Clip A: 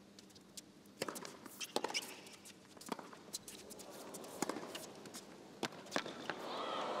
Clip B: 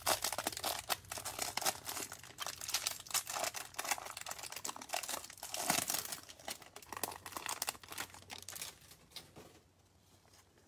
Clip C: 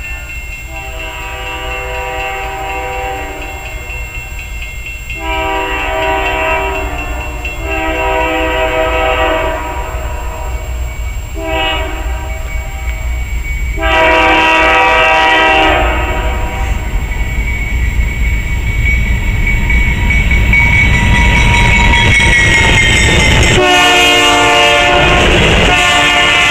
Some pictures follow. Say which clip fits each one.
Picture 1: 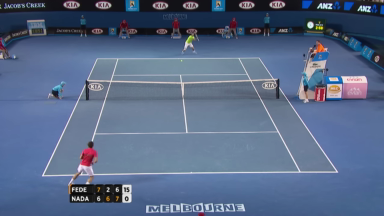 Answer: A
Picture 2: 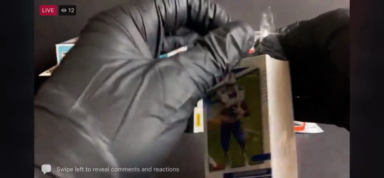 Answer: B